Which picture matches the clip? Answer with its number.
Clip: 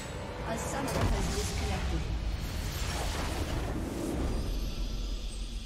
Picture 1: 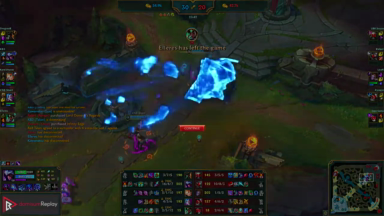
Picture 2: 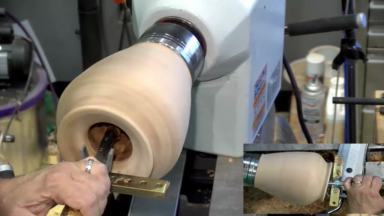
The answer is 1